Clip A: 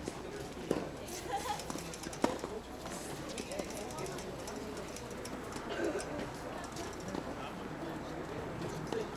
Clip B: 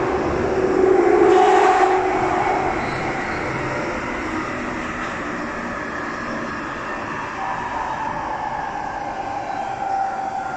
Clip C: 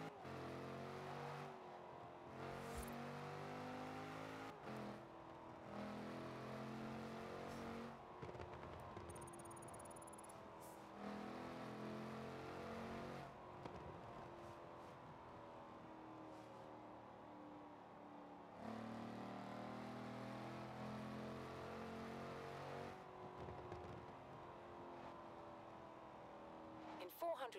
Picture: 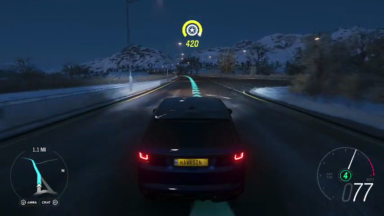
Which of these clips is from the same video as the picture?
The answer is C